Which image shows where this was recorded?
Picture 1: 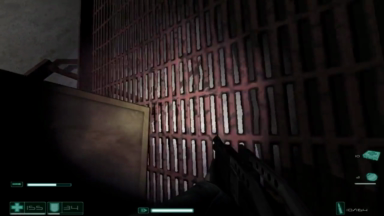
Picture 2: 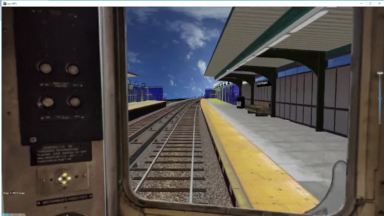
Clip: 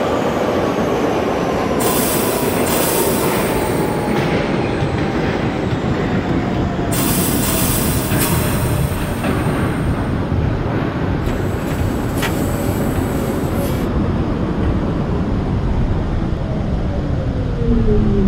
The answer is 2